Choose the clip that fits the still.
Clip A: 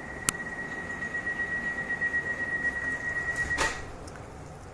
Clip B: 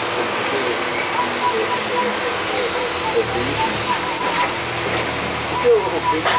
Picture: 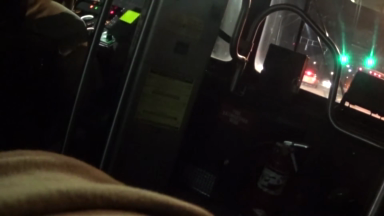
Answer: B